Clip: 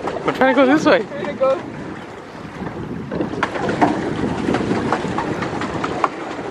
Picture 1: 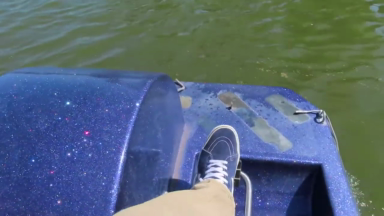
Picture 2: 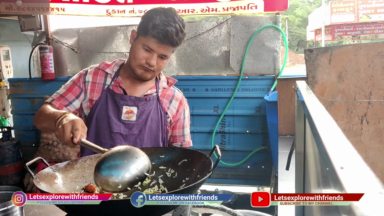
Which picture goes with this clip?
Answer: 1